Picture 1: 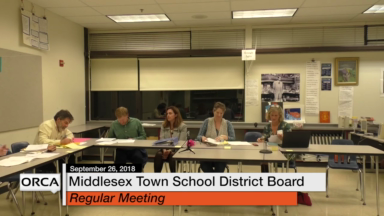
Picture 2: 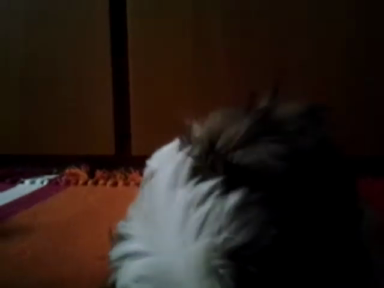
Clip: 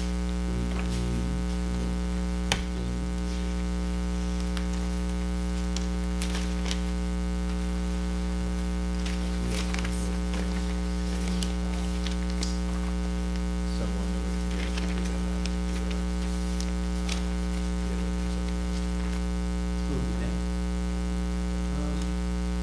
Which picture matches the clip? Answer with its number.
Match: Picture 1